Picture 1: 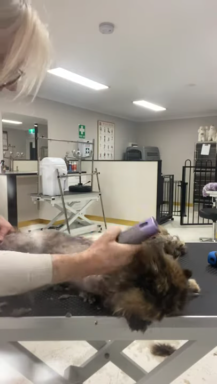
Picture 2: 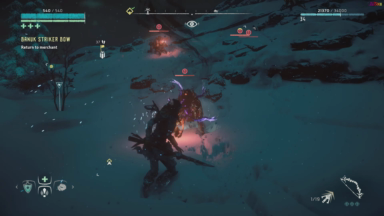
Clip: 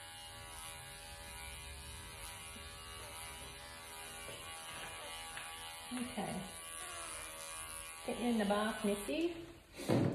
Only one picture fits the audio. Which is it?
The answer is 1